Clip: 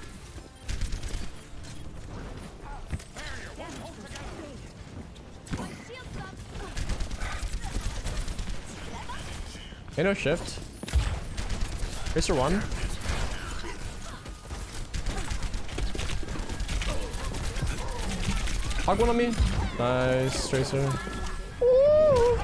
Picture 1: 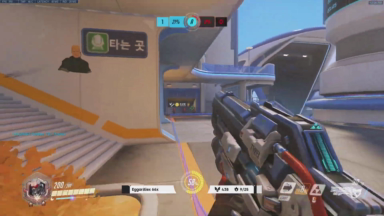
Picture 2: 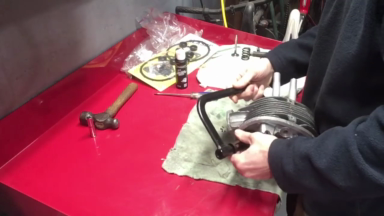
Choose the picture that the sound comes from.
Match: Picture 1